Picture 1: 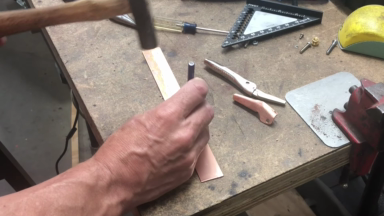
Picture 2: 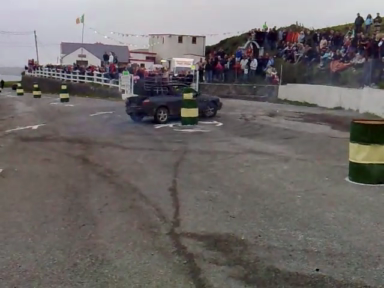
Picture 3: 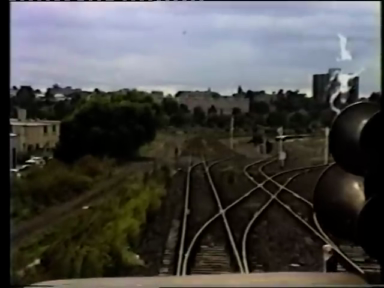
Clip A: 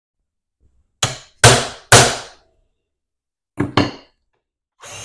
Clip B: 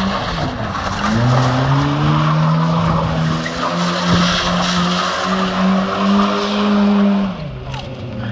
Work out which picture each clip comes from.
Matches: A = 1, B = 2